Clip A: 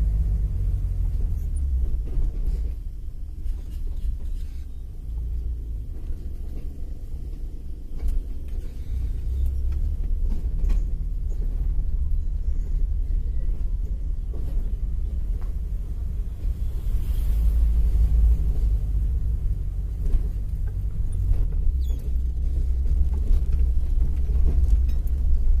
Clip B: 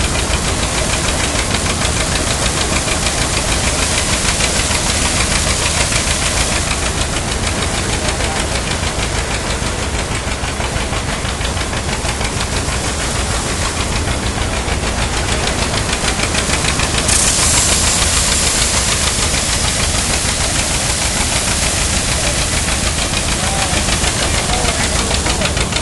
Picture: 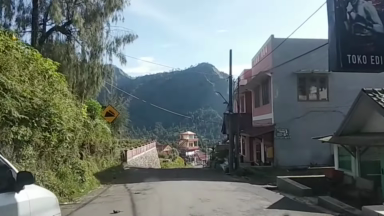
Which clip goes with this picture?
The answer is A